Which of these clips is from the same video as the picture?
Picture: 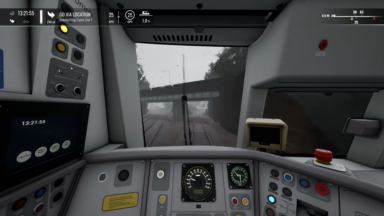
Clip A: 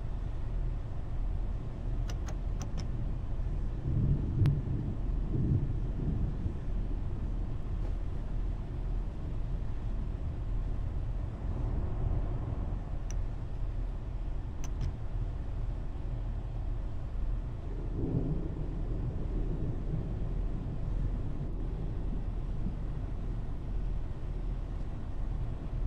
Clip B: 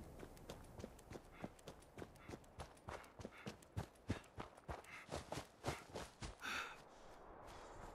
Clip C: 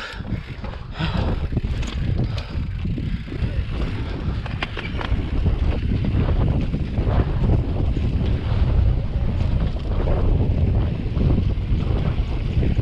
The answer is A